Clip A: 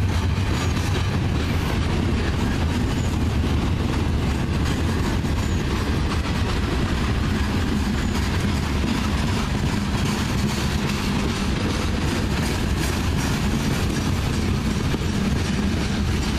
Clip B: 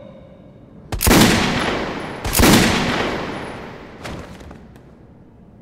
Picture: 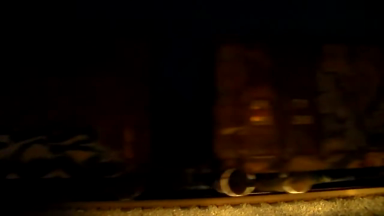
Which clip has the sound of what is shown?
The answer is A